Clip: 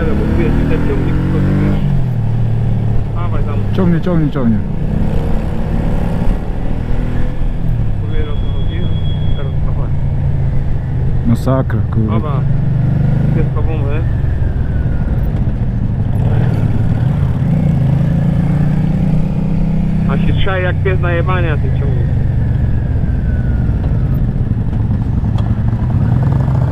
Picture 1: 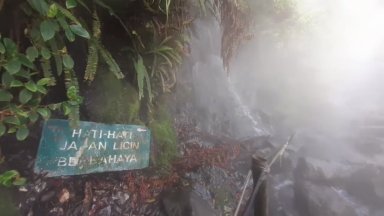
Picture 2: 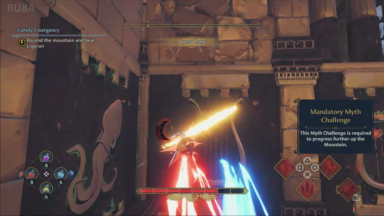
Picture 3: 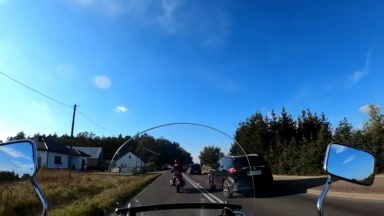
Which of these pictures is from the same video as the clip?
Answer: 3